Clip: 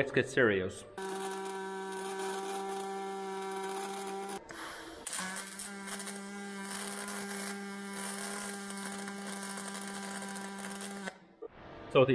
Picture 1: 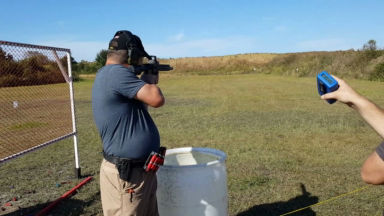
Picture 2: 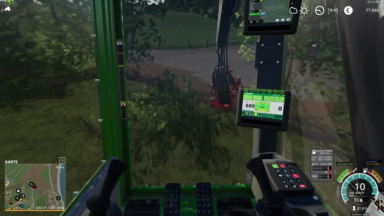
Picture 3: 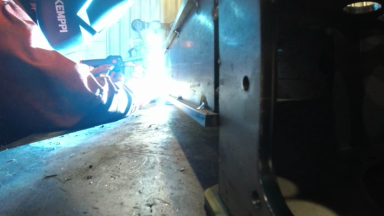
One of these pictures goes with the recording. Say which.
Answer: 3